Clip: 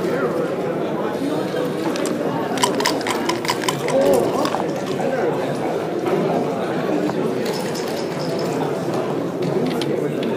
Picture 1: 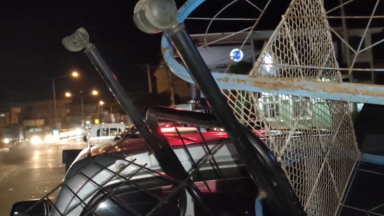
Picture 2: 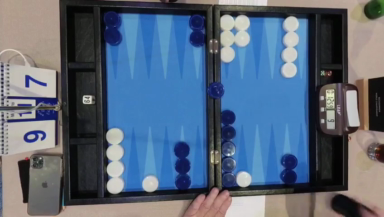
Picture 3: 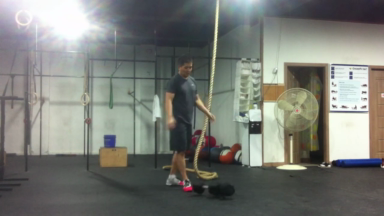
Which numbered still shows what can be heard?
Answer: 2